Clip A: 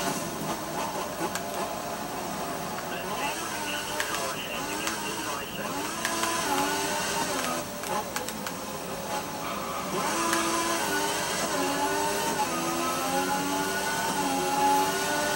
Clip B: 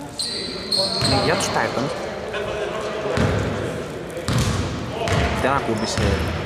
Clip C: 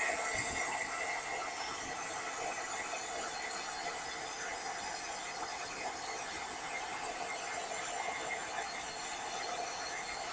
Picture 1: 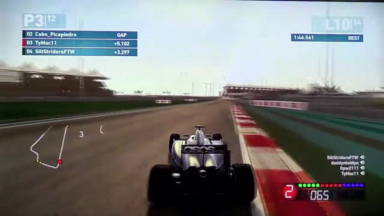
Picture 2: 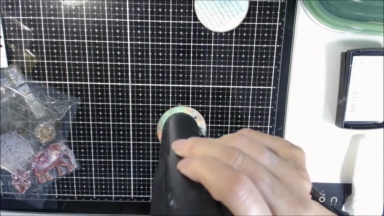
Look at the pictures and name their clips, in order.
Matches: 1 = A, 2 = C